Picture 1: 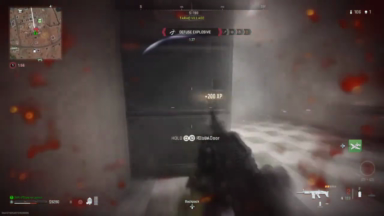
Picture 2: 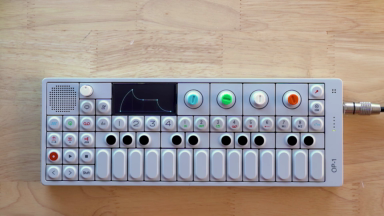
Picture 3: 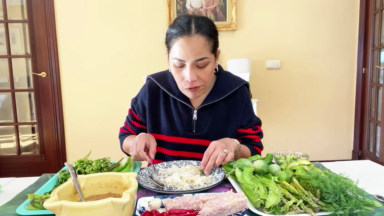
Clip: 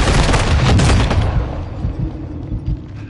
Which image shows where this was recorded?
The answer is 1